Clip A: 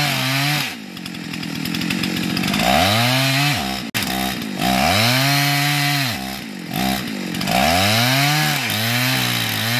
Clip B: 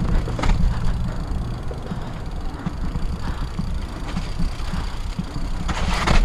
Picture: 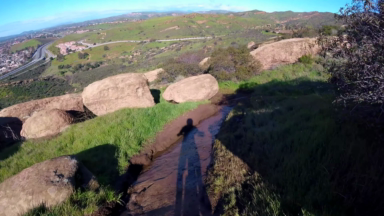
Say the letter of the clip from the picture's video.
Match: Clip B